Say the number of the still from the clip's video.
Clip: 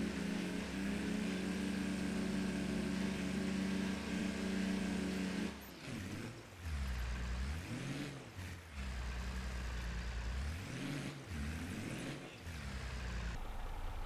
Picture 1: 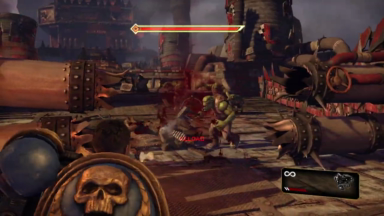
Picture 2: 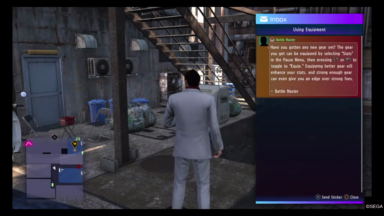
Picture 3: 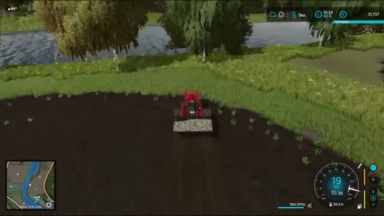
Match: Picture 3